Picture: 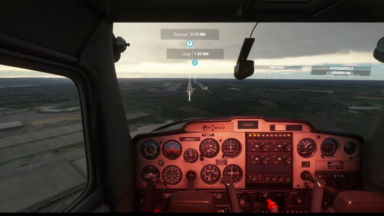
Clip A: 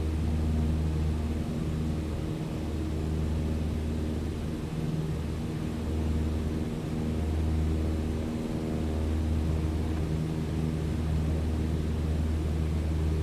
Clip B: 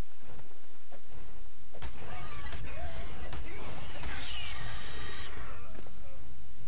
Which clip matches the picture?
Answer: A